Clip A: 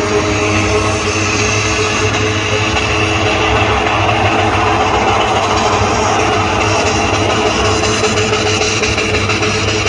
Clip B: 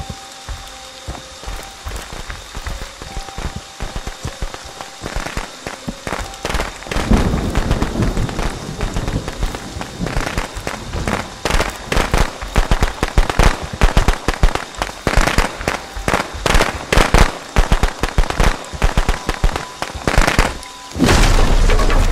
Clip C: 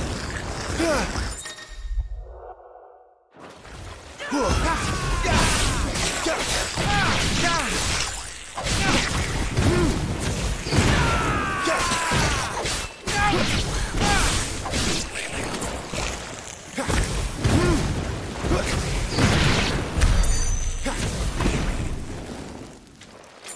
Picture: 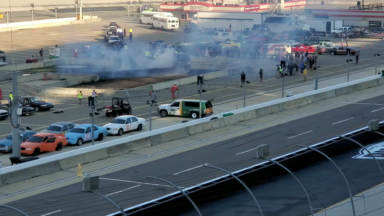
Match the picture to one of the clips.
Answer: A